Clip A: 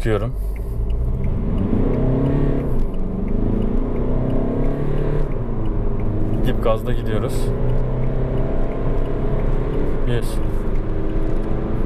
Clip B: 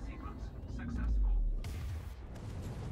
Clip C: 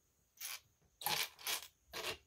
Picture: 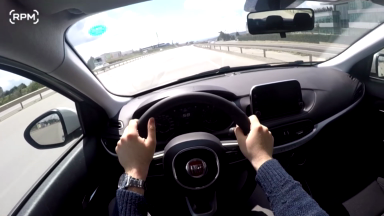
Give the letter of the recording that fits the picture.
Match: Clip A